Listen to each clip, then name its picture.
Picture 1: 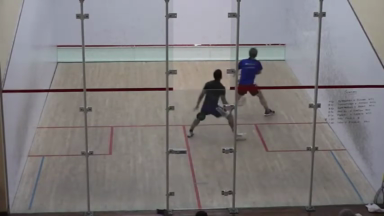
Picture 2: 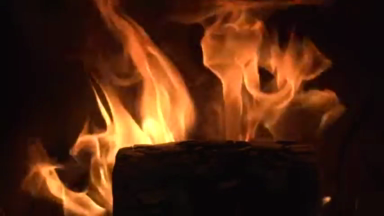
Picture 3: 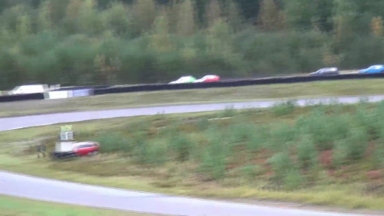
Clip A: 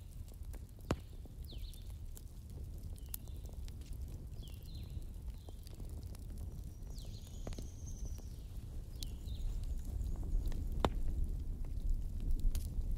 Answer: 2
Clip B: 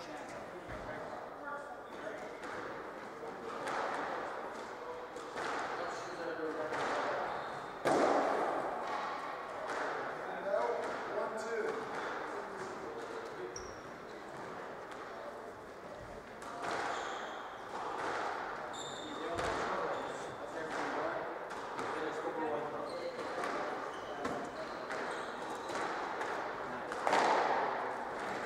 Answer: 1